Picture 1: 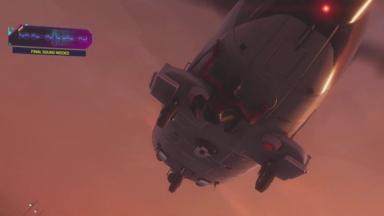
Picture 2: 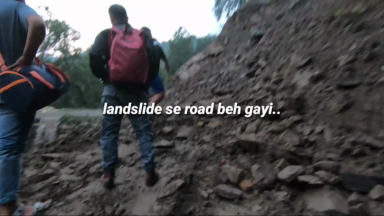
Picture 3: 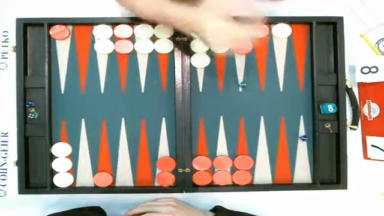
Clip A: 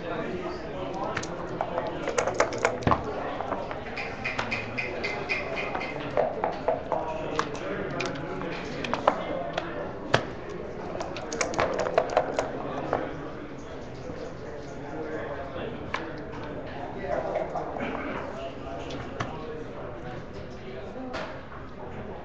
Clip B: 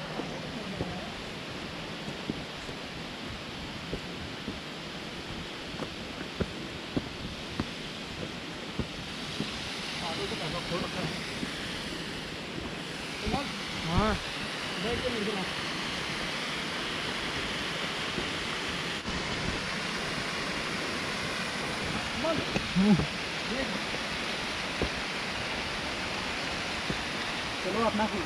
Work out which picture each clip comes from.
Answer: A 3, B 2